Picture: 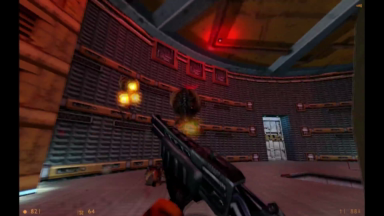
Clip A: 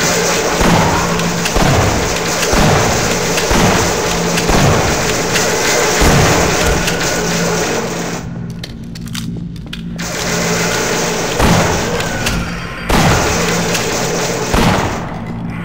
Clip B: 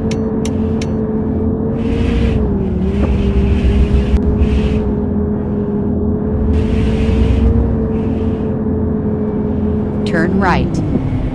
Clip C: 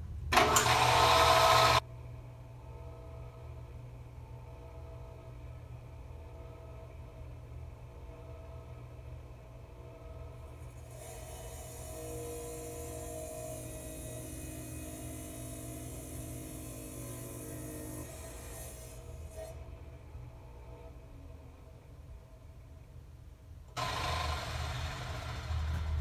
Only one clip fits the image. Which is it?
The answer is A